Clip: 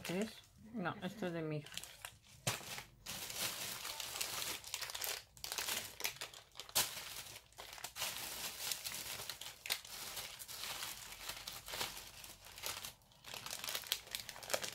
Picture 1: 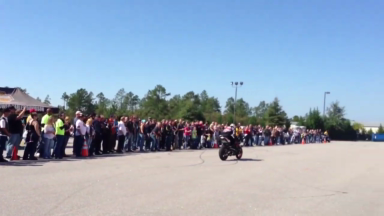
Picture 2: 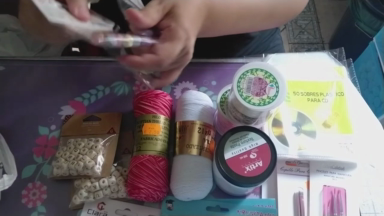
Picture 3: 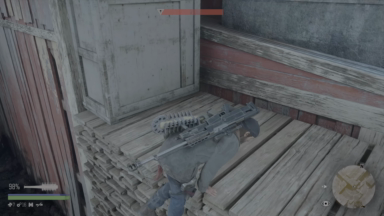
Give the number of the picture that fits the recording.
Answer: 2